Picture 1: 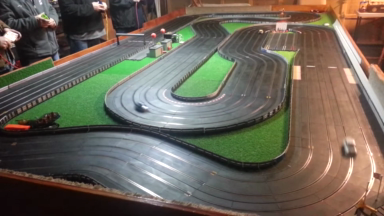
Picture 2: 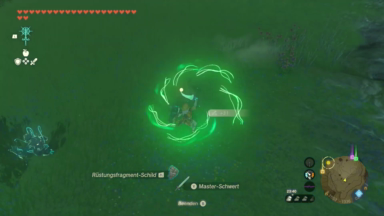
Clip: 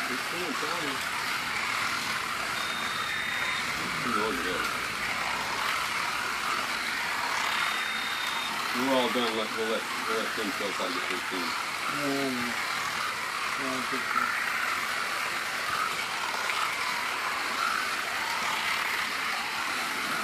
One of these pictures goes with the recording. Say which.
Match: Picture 1